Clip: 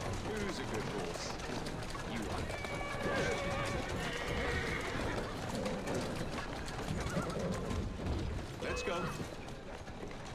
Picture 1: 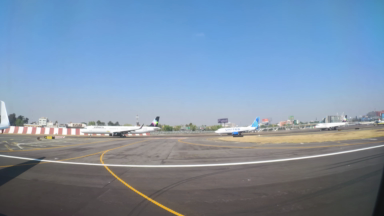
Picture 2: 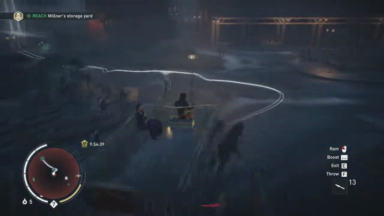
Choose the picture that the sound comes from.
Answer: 2